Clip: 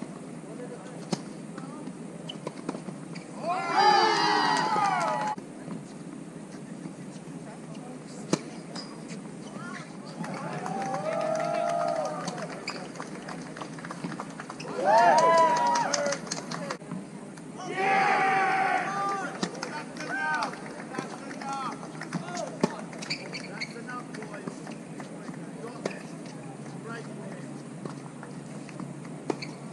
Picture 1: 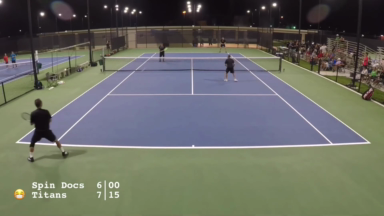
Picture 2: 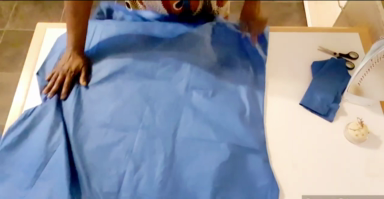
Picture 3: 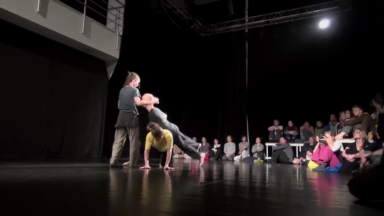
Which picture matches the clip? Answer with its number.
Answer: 1